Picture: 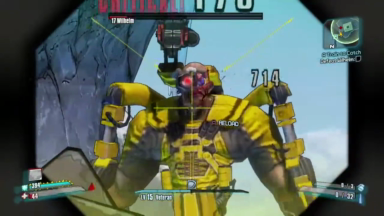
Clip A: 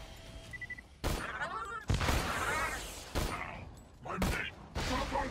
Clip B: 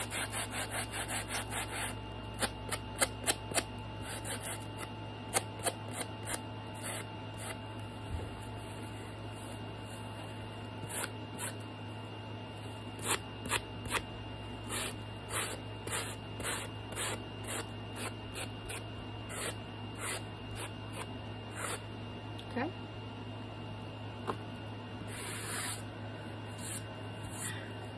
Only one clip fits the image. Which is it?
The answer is A